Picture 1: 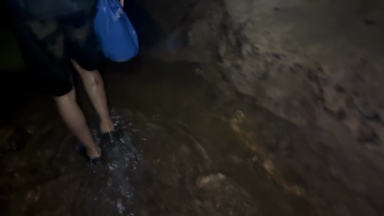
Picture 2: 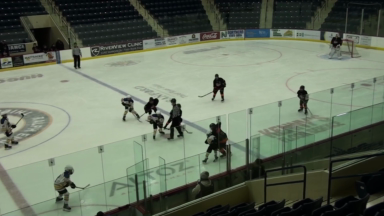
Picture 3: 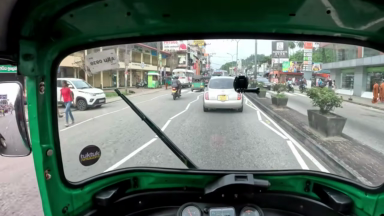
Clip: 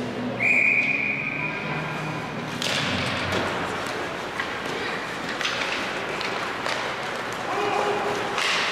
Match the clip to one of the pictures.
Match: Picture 2